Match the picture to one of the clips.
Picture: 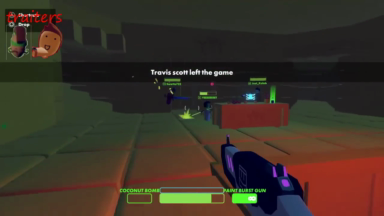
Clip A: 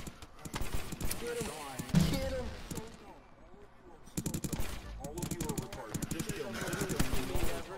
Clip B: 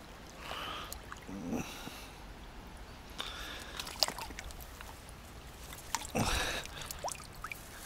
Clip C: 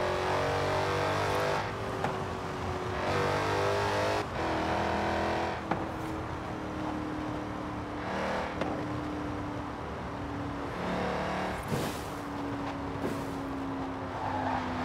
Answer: A